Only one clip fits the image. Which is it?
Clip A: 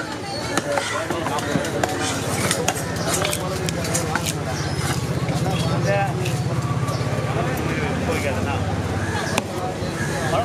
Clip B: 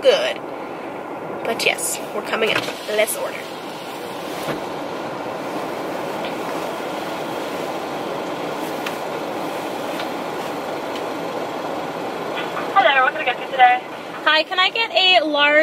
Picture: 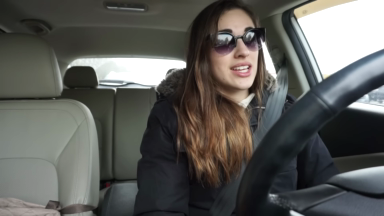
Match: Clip B